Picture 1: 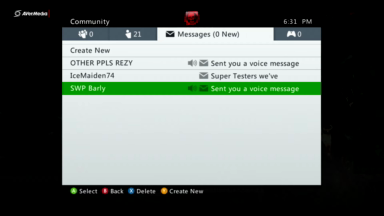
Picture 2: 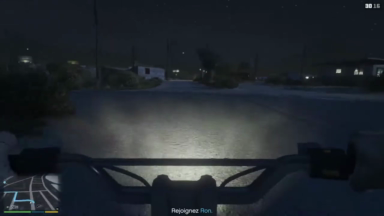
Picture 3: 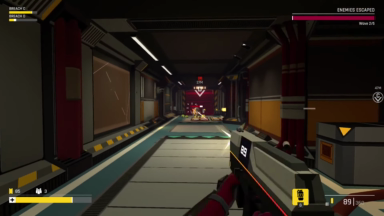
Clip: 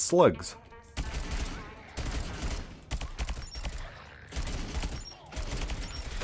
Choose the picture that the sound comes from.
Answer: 3